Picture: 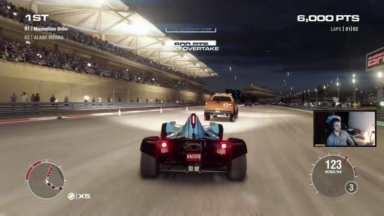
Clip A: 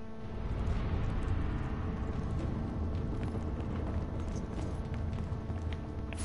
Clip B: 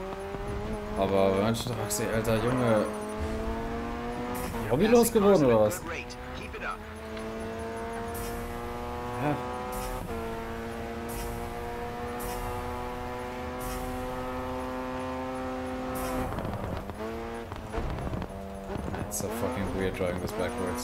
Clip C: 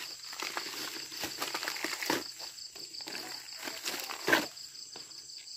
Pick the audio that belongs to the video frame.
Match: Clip B